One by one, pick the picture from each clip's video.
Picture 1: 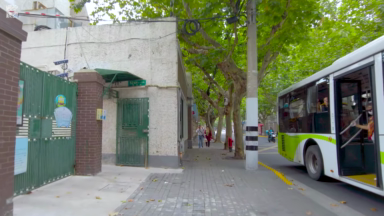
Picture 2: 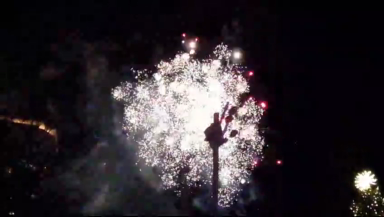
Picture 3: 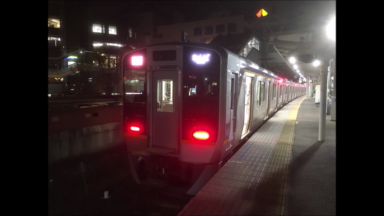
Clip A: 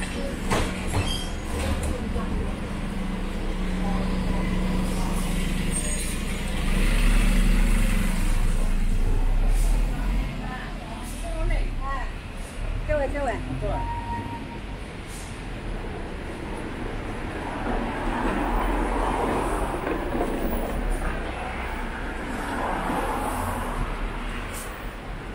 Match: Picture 1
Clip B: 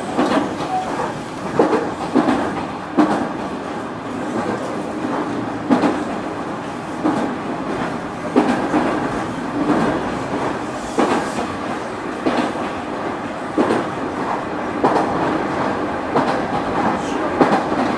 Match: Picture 3